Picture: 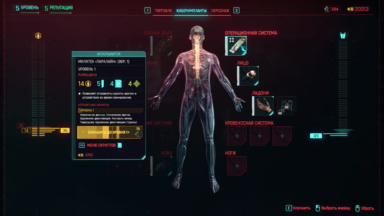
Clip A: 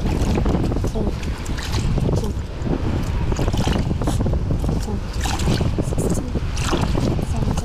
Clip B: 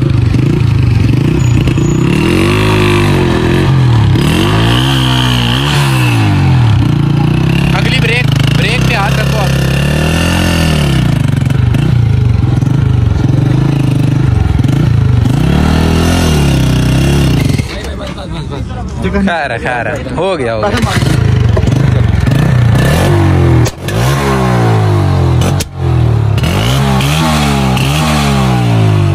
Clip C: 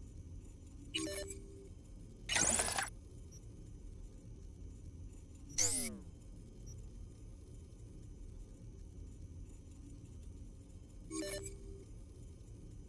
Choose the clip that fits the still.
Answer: C